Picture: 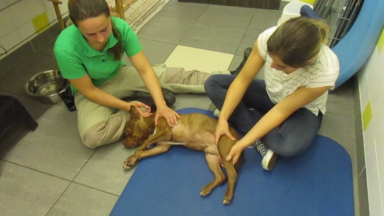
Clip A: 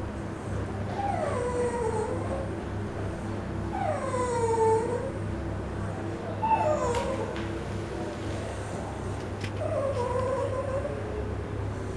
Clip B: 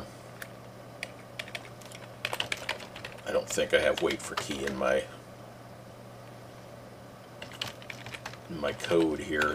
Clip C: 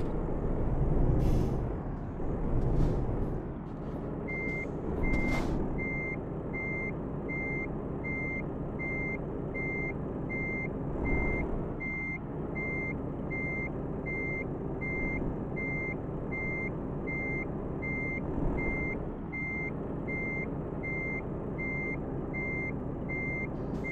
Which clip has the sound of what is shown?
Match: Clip A